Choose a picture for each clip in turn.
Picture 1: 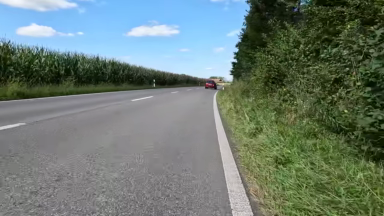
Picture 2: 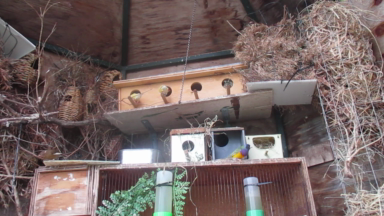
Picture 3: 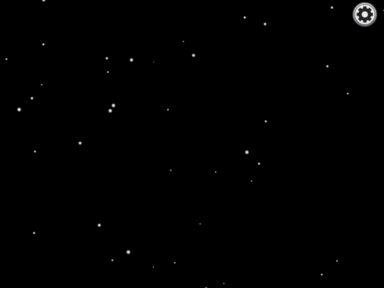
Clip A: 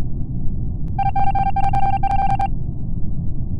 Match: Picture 3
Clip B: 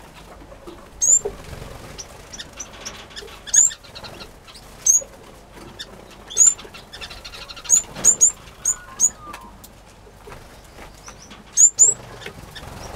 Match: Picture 2